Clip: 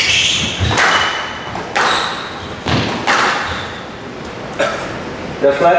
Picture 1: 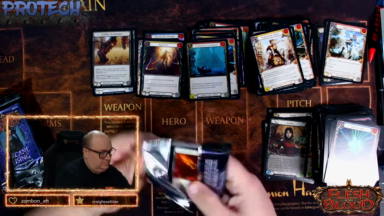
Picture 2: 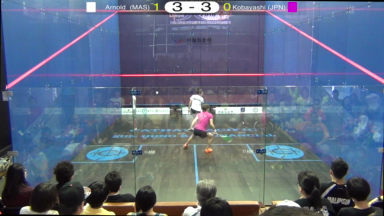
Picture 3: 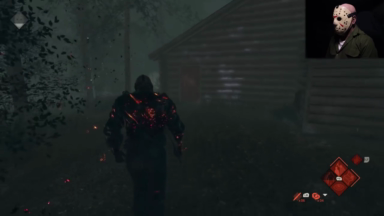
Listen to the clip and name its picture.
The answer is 2